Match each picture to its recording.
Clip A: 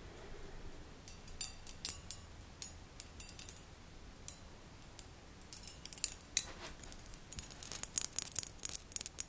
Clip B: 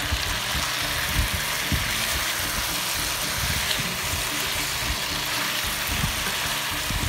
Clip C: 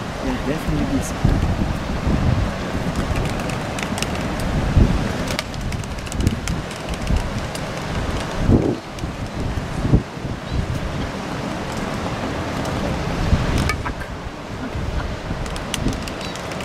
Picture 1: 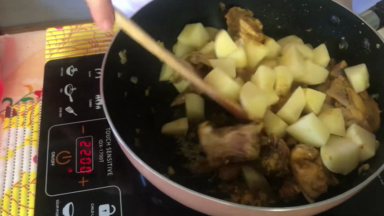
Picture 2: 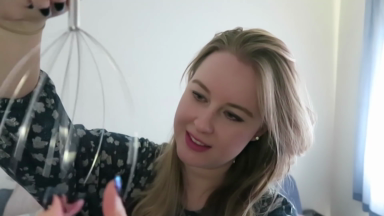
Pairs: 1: B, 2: A